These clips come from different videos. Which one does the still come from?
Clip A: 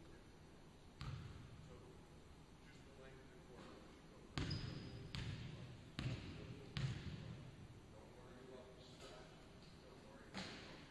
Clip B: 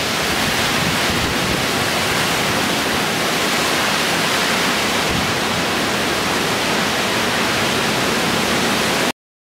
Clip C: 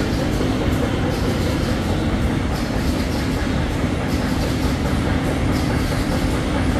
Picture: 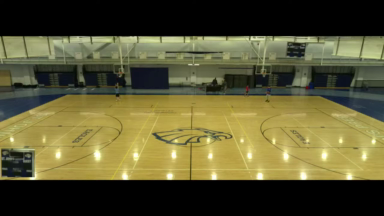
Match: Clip A